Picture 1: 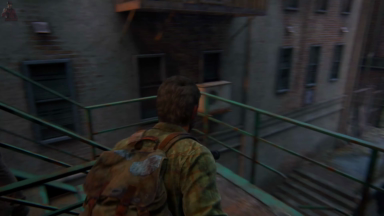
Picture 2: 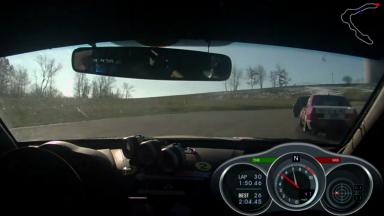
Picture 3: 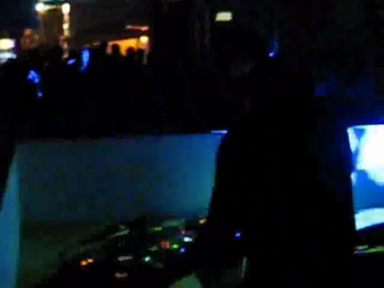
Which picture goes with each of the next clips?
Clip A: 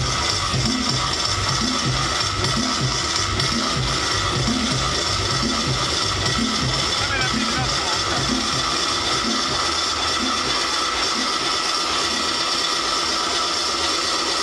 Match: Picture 3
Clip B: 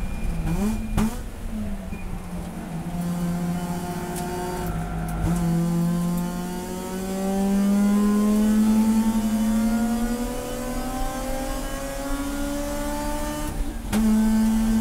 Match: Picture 2